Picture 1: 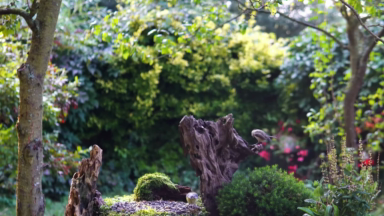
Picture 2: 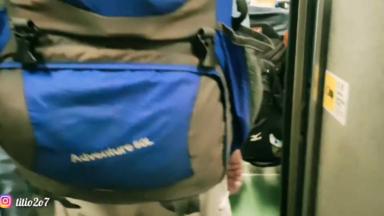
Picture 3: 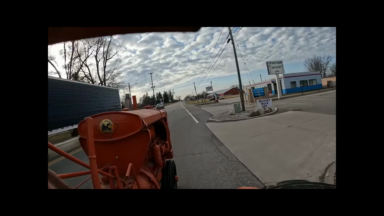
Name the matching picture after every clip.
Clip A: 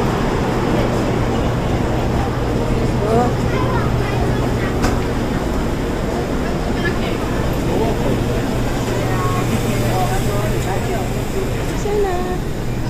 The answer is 2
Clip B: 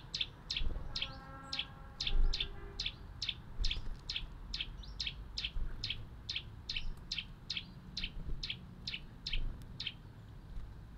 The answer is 1